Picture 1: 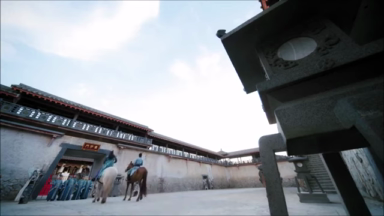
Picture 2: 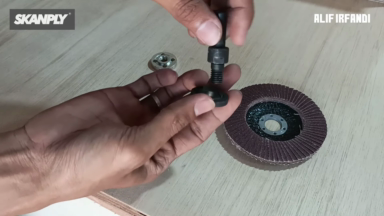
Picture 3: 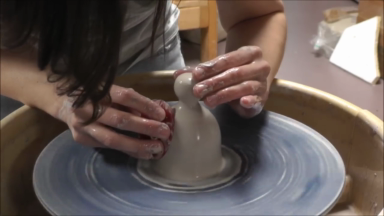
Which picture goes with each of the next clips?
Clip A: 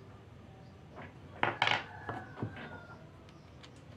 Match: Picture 2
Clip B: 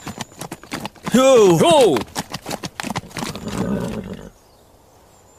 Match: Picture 1